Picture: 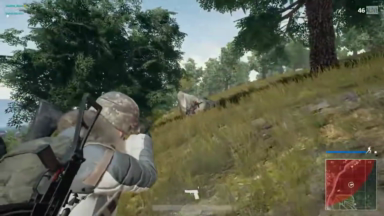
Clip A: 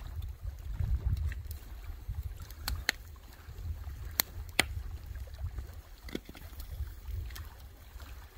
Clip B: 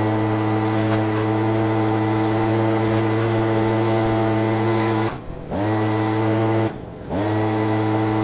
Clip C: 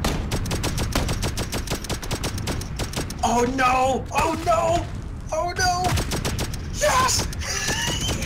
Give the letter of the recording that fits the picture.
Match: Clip C